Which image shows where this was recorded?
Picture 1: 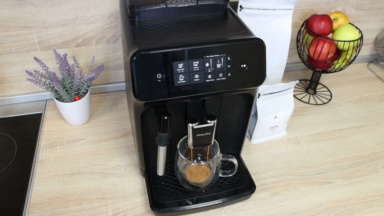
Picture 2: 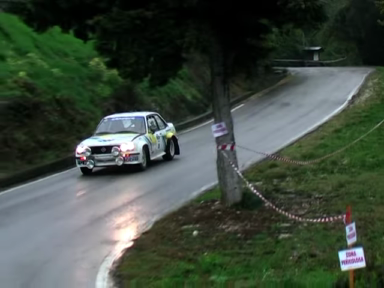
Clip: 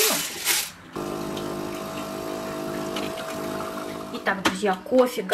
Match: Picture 1